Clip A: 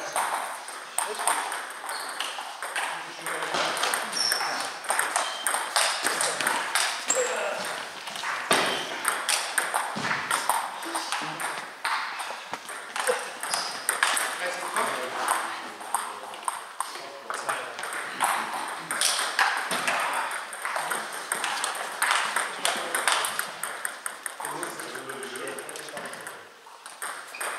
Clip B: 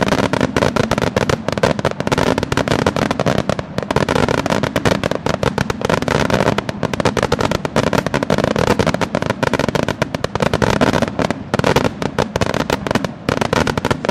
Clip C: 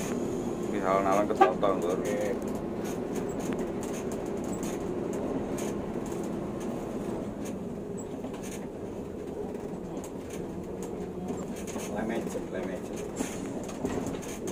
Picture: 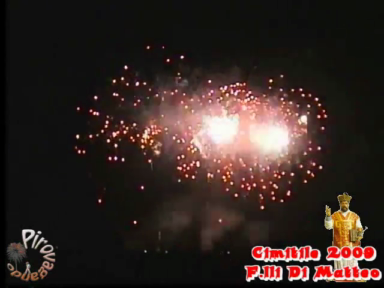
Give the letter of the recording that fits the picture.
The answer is B